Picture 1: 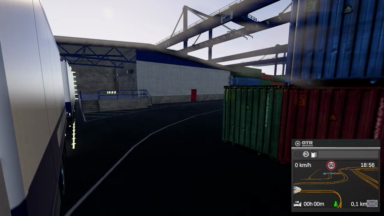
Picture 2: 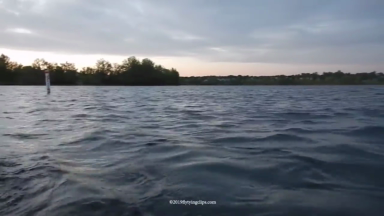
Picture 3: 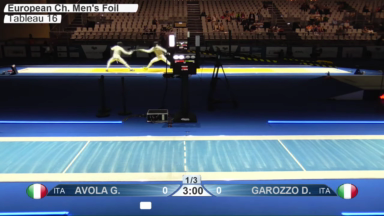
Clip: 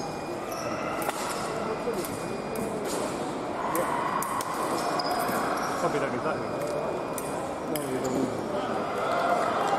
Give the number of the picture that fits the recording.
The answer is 3